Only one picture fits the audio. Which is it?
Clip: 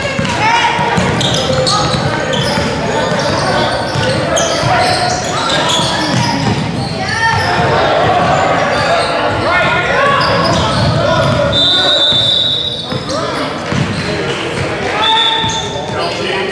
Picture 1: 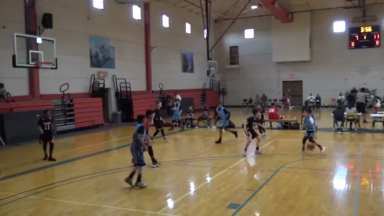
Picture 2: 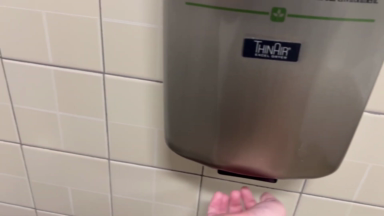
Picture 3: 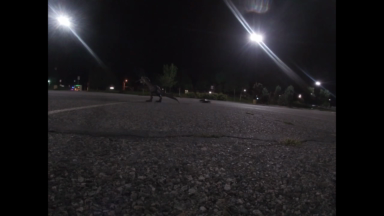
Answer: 1